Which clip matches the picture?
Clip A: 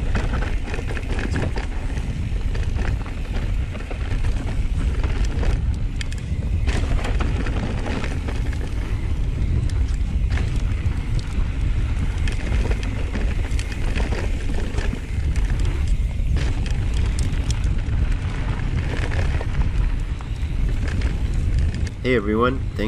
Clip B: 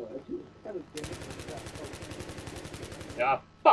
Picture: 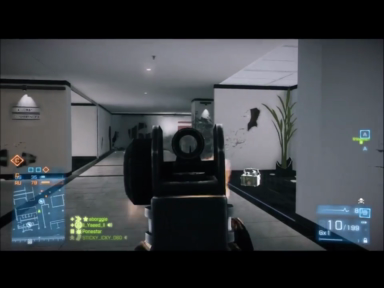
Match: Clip B